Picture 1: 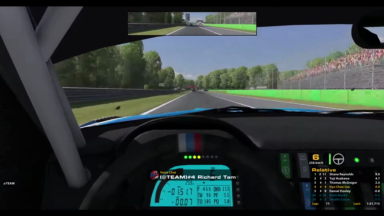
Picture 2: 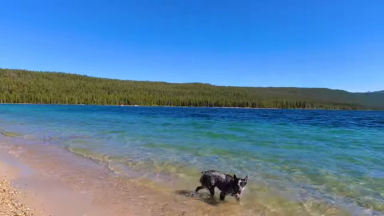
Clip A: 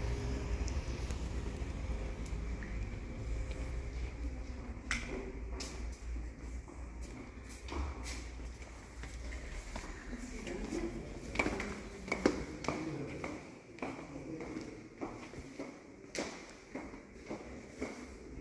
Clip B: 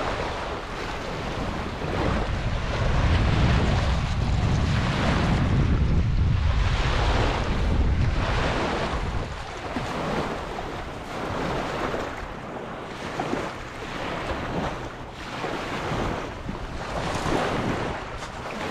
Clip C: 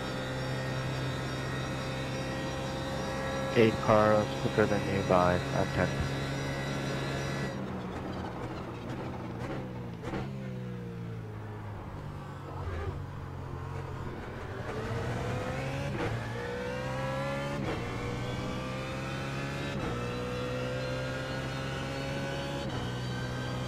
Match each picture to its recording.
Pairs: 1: C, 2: B